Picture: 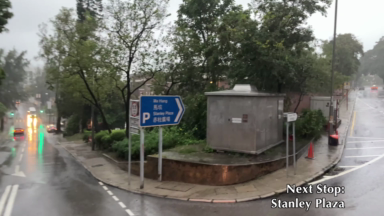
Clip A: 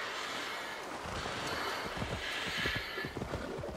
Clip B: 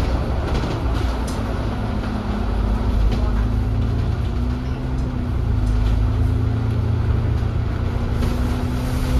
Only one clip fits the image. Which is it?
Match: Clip B